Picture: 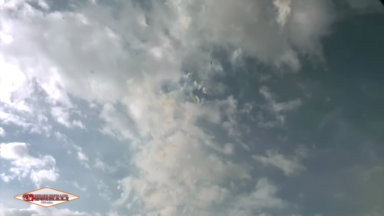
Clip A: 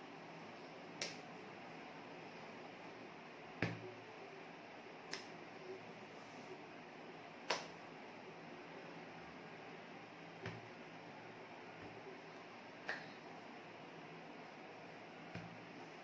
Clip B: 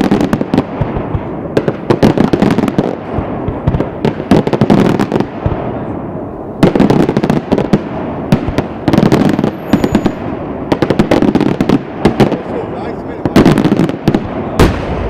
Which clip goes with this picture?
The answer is B